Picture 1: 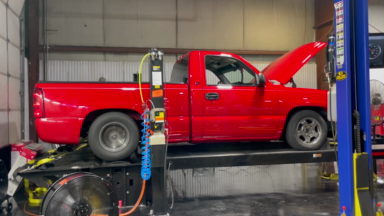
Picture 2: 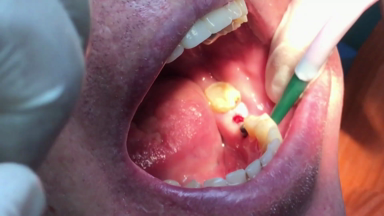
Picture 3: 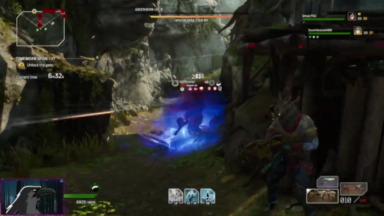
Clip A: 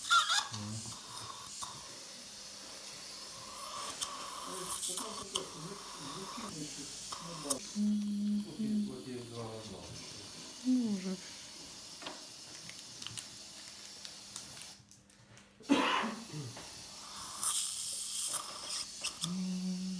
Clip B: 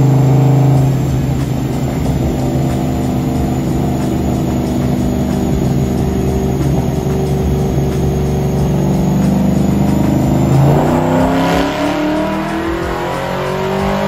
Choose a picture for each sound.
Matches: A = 2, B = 1